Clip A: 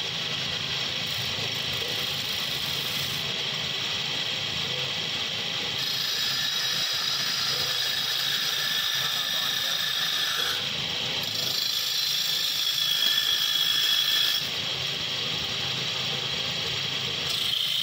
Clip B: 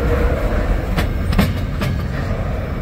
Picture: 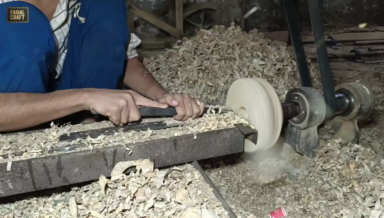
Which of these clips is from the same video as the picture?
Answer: A